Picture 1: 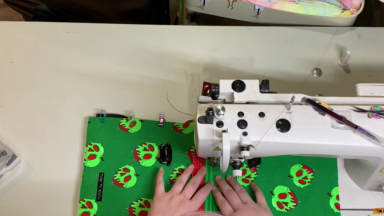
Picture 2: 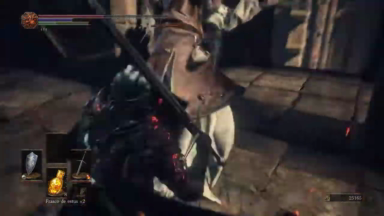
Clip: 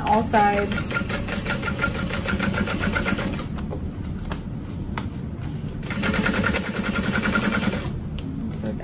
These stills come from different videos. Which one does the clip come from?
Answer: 1